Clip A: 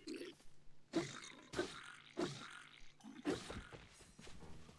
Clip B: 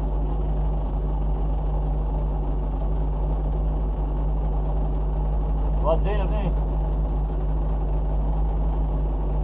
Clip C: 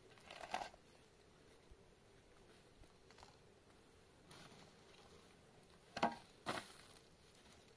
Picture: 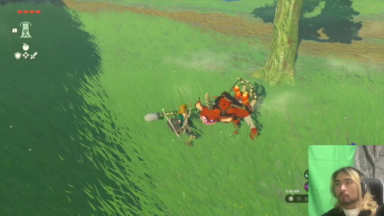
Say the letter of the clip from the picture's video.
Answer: A